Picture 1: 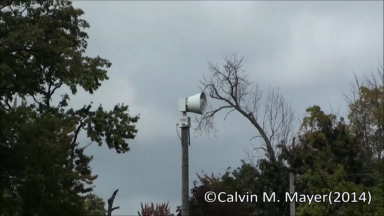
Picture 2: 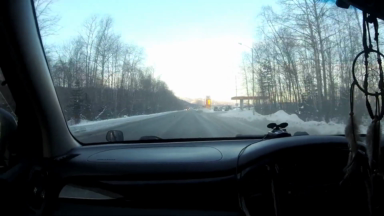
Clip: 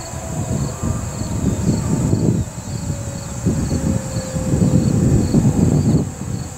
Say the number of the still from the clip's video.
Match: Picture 1